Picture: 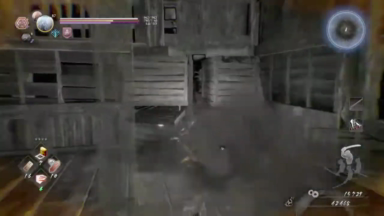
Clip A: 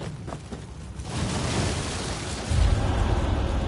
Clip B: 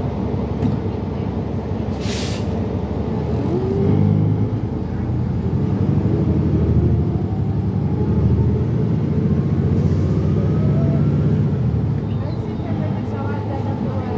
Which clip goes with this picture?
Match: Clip A